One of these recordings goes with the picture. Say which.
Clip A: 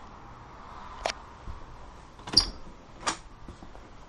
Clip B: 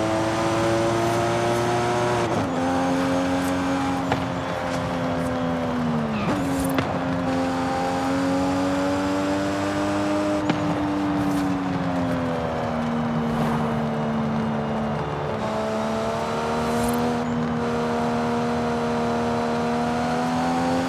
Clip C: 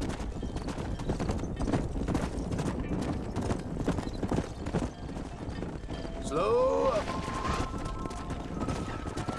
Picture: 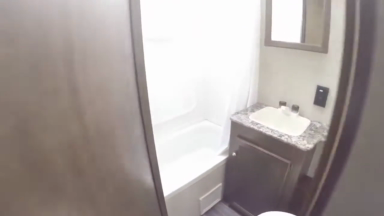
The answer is A